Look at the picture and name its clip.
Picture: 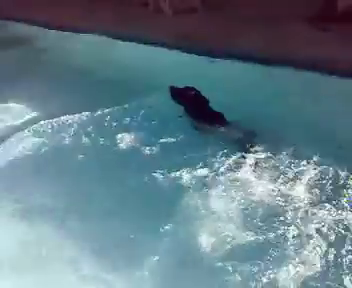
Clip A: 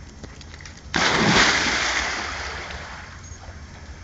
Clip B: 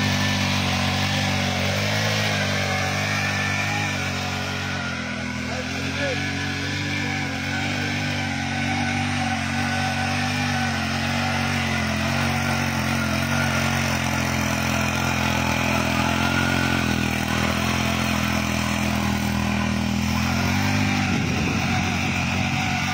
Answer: A